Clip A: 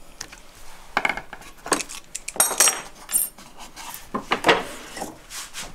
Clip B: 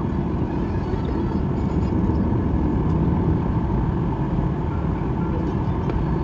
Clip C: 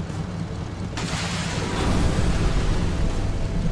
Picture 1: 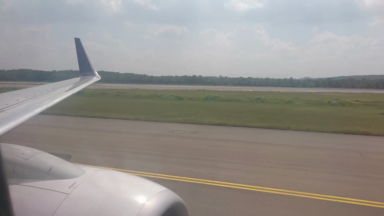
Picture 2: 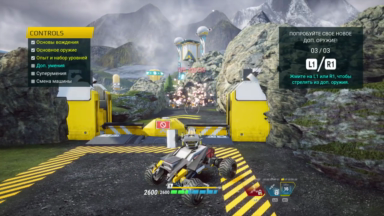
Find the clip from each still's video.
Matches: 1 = B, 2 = C